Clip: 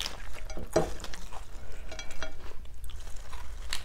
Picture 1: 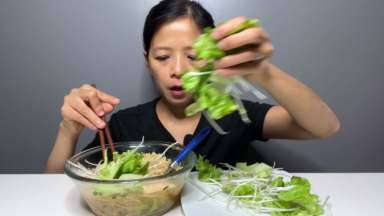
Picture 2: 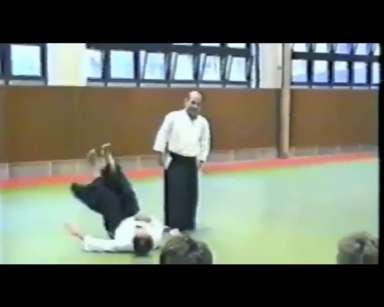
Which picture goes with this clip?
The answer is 1